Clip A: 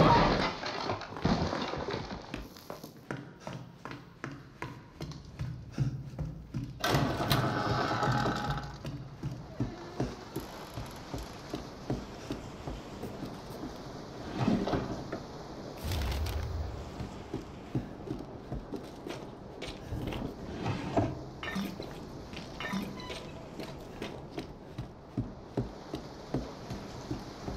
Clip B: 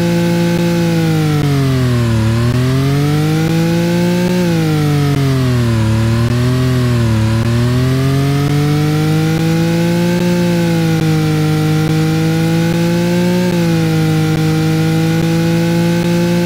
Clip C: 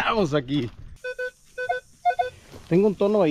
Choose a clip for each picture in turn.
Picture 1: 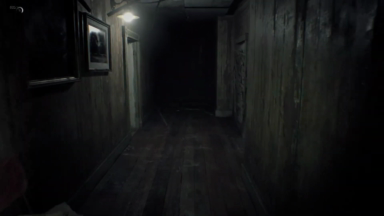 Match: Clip A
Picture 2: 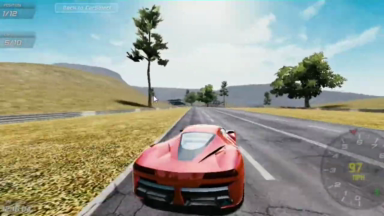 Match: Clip B